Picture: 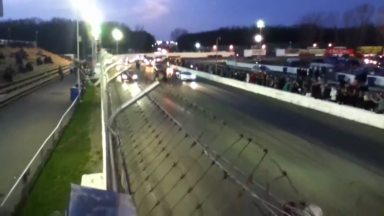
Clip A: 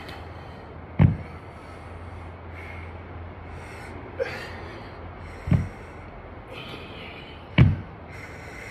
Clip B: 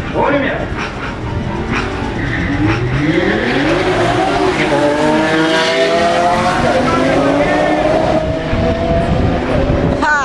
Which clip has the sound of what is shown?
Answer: B